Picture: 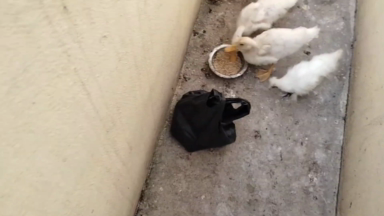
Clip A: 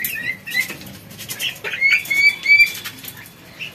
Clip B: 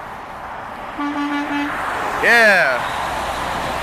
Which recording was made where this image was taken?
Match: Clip A